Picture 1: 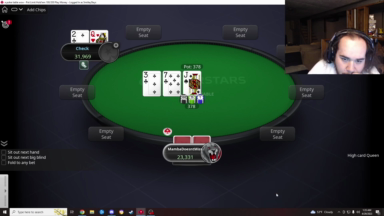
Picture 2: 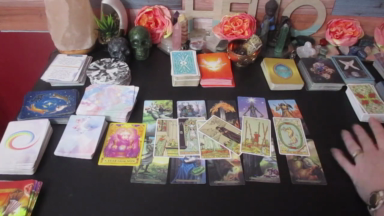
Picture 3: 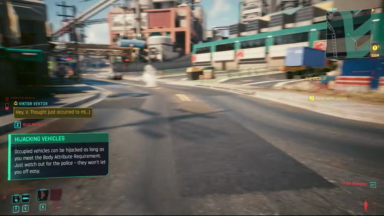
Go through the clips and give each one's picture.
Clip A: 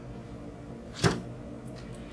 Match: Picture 2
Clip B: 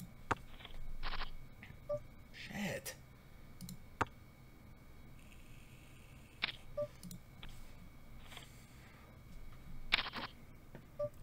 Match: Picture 1